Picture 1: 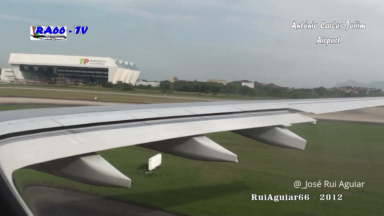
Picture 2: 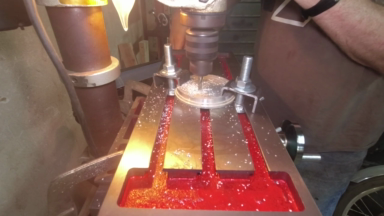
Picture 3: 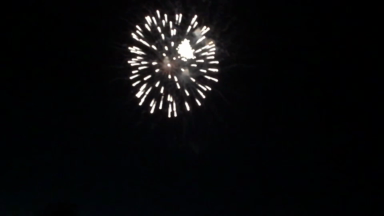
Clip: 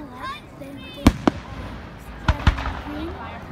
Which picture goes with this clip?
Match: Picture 3